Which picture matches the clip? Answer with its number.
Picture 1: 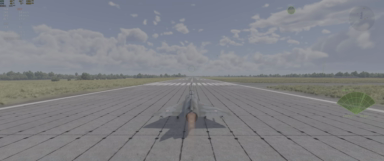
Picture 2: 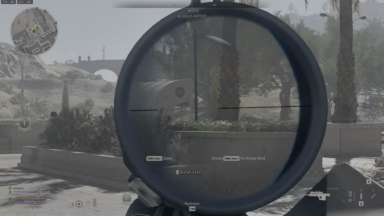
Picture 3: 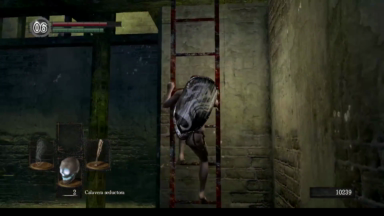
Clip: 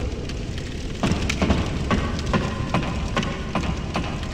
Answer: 3